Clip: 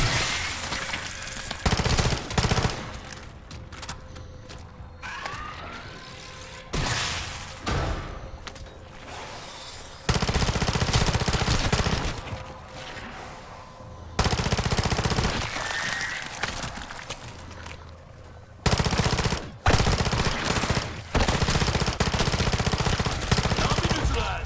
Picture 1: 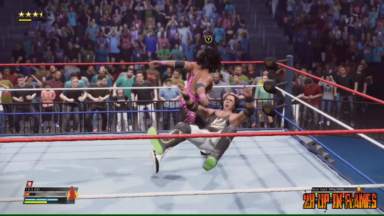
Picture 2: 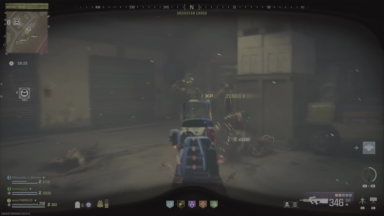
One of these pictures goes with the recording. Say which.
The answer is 2